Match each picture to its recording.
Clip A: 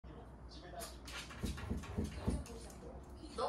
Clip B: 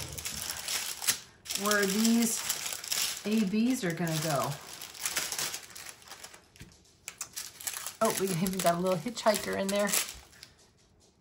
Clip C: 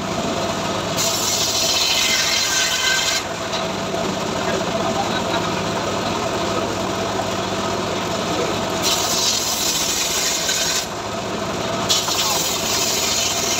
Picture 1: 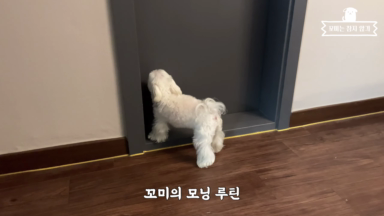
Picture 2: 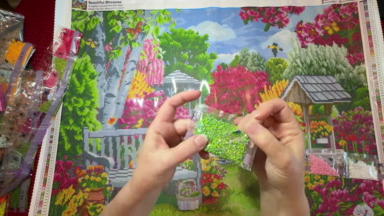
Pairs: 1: A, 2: B